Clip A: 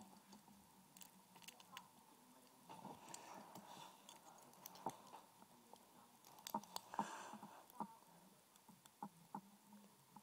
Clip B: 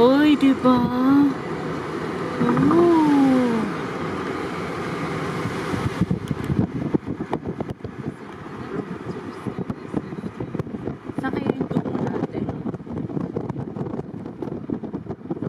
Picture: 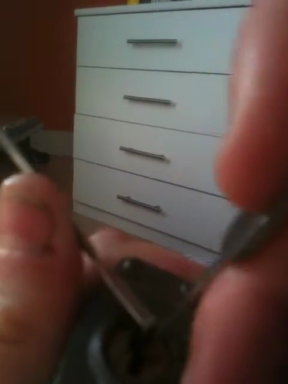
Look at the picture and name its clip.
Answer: A